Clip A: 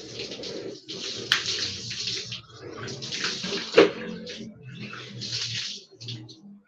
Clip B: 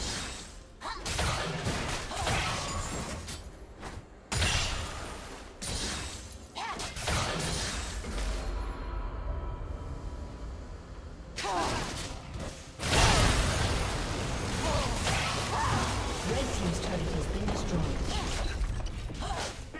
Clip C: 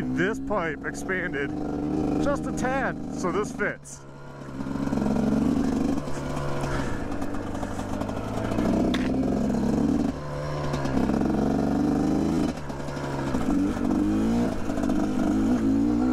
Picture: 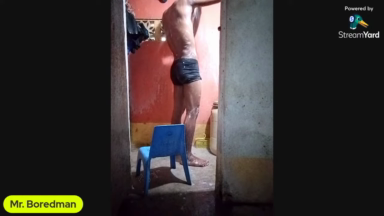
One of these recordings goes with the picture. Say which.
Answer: A